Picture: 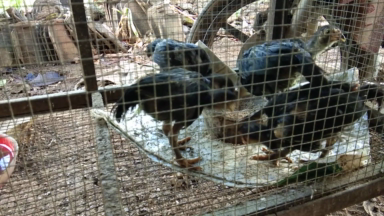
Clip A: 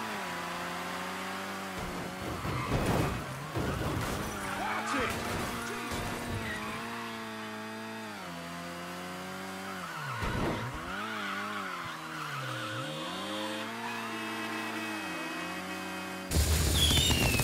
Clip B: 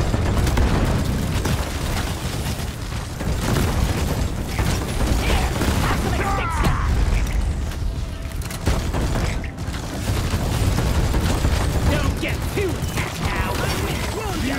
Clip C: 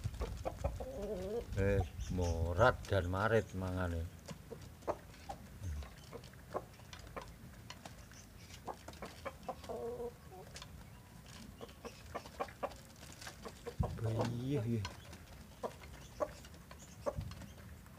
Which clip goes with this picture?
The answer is C